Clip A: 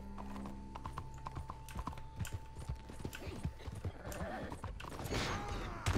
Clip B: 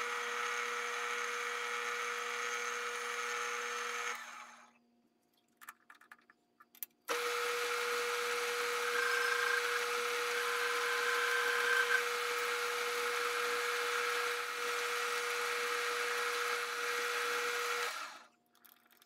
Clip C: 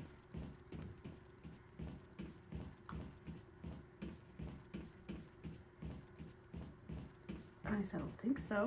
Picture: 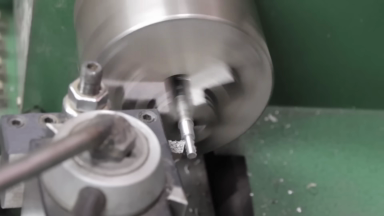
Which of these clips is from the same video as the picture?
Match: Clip B